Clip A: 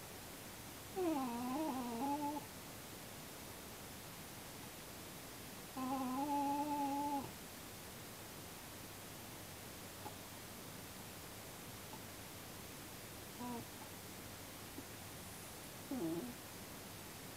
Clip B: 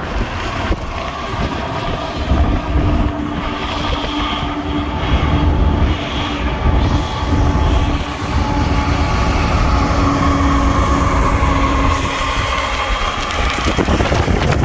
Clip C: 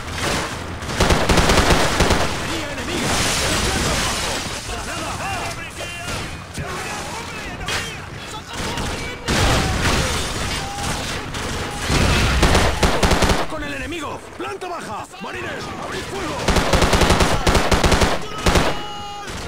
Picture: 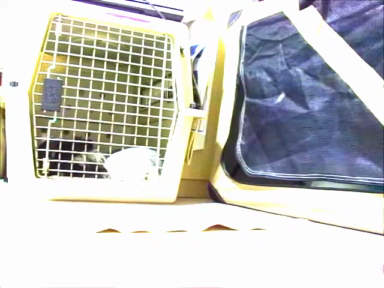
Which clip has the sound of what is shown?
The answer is A